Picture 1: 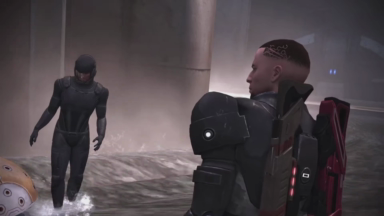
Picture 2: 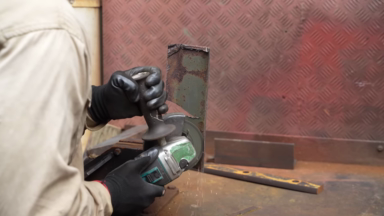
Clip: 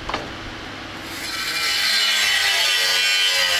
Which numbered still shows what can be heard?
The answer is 2